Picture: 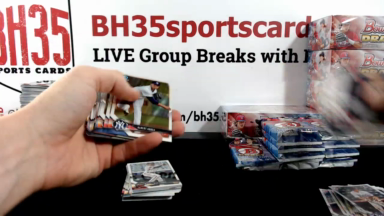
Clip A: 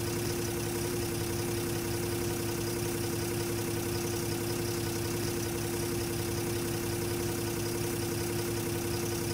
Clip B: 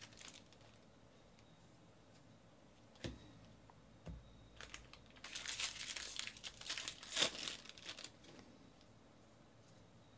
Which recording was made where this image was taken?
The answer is B